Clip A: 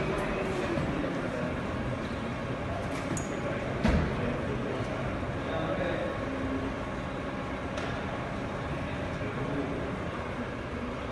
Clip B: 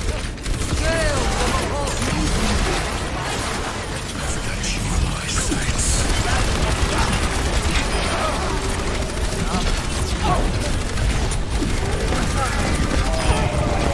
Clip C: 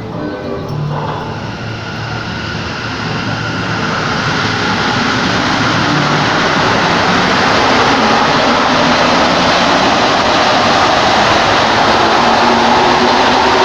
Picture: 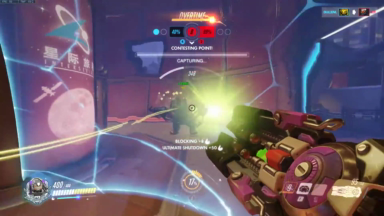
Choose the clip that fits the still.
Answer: B